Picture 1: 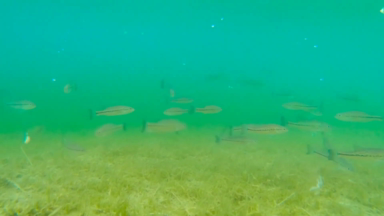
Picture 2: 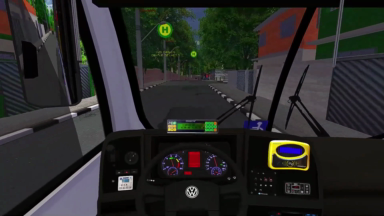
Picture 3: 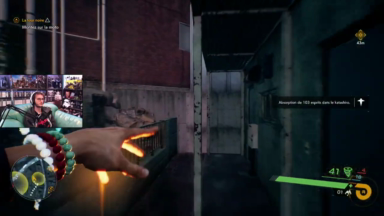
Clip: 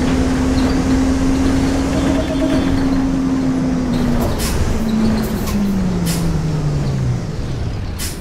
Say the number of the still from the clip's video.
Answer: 2